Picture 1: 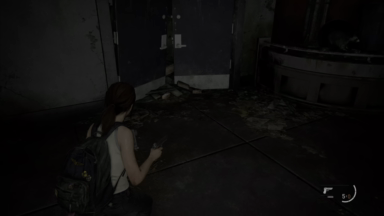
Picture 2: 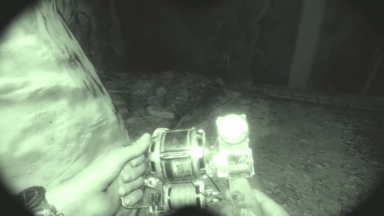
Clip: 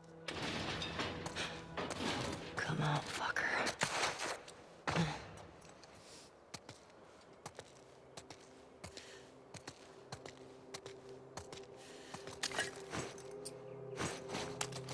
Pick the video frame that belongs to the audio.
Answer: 1